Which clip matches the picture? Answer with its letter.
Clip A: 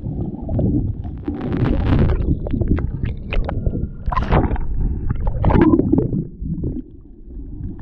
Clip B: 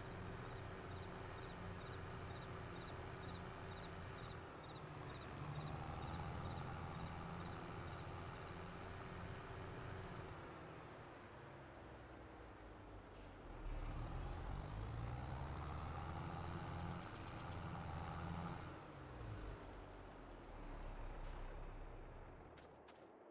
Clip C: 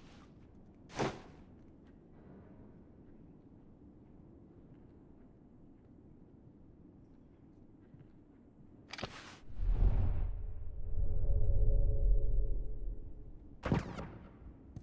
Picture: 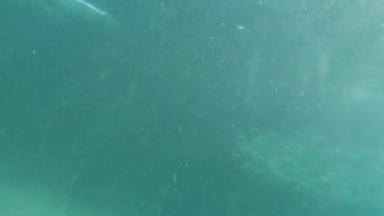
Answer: A